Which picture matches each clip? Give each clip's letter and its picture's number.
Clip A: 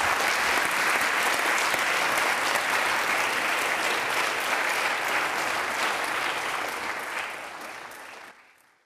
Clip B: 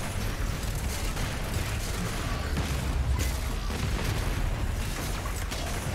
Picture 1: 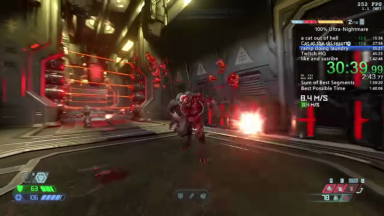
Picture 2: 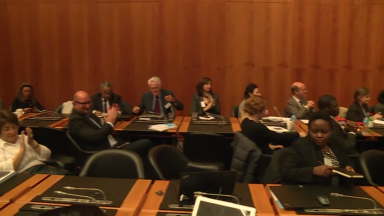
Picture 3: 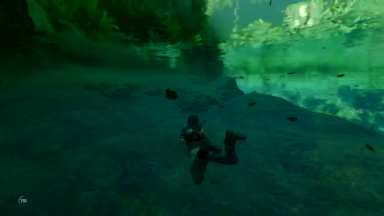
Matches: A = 2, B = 1